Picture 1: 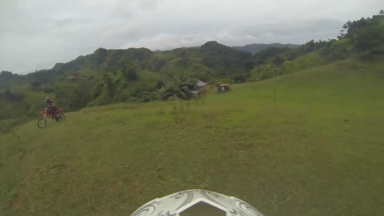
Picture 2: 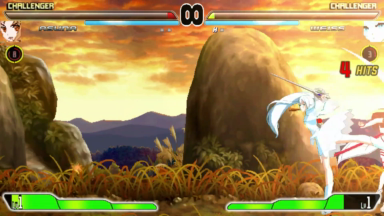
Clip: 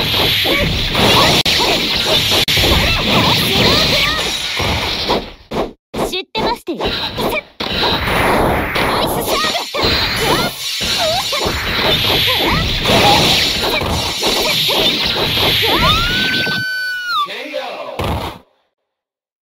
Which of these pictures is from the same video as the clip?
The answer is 2